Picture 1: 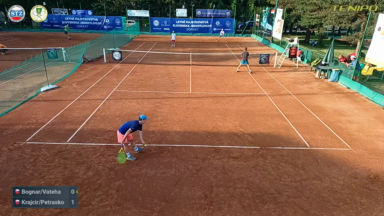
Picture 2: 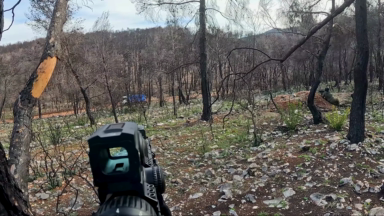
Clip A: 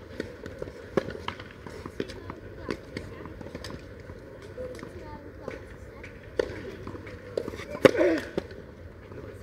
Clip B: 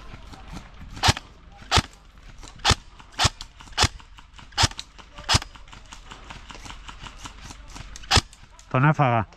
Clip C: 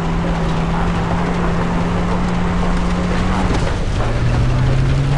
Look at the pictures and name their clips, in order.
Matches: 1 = A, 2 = B